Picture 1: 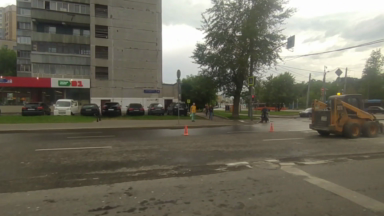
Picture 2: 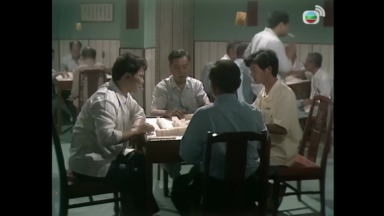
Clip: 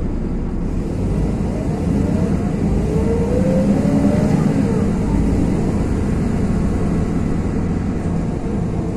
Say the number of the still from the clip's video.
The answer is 1